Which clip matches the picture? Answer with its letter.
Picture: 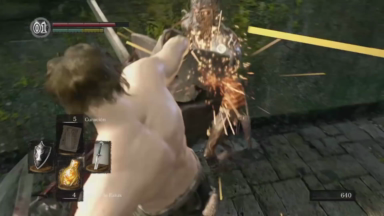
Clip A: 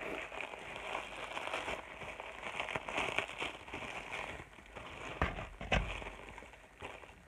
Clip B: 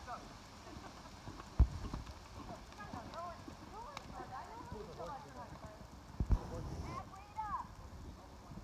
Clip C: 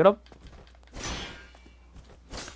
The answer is C